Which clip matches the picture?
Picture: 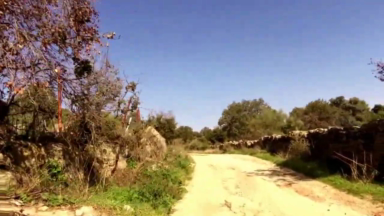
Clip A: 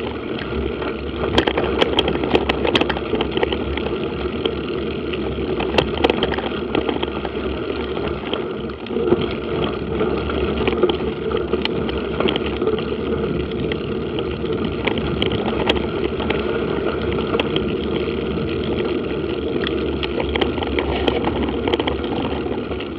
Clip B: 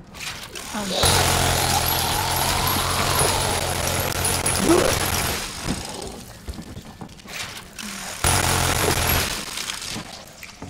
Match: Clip A